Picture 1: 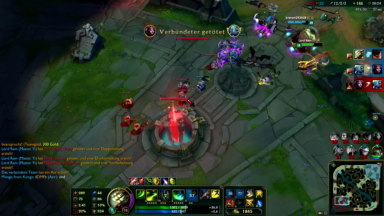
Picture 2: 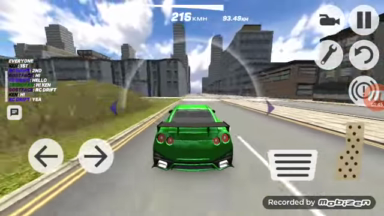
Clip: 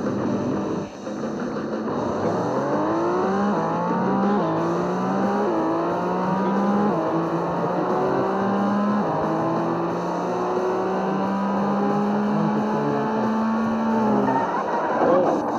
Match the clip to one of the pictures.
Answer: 2